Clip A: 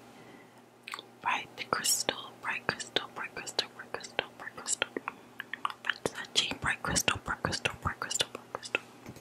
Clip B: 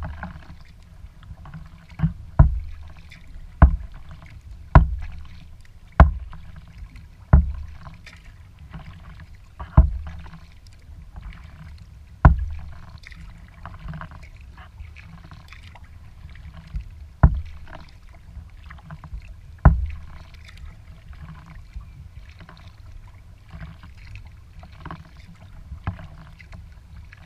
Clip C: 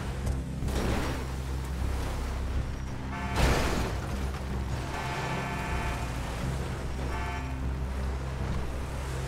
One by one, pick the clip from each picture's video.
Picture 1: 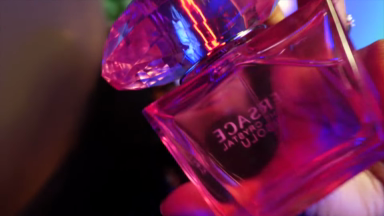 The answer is A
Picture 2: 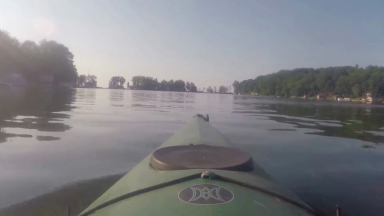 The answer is B